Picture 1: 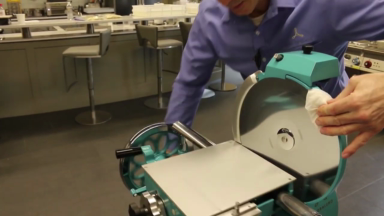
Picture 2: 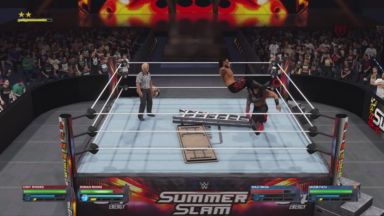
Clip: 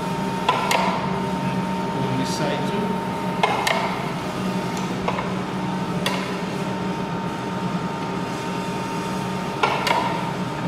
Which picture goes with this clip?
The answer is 1